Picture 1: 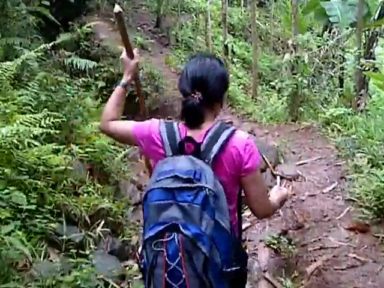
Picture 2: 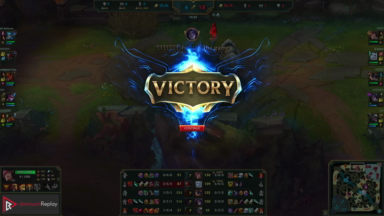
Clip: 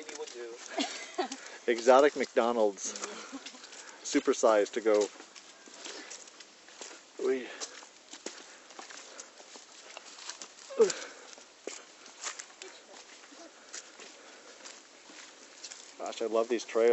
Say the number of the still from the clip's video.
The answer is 1